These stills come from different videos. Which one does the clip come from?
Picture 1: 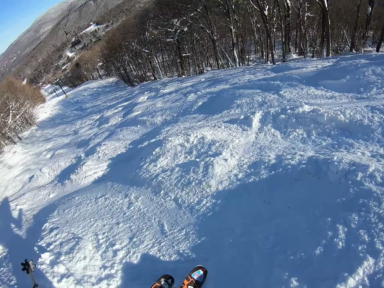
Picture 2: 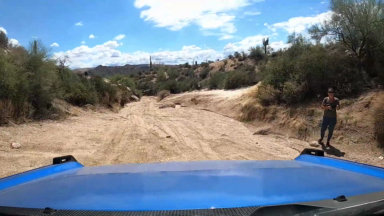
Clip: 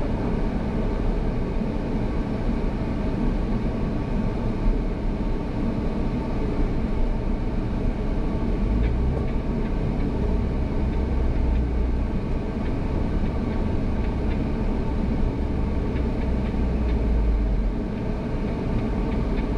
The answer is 2